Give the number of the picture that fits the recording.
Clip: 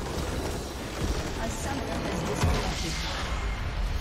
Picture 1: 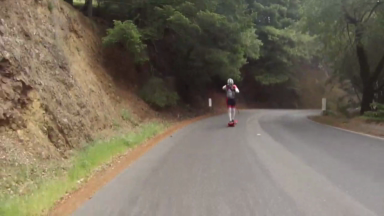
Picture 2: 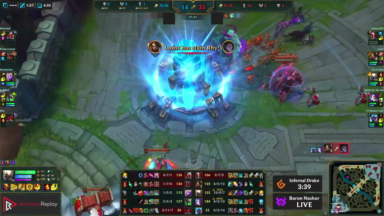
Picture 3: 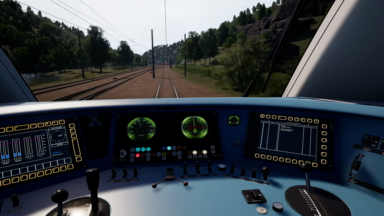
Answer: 2